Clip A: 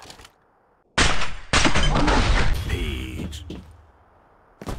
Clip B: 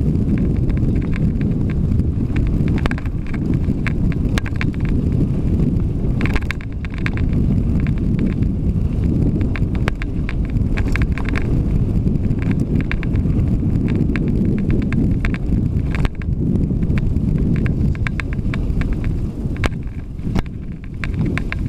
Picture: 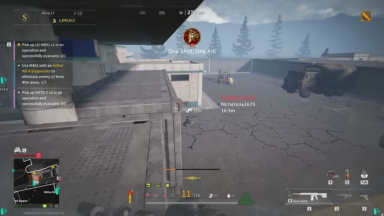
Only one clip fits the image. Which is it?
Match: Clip A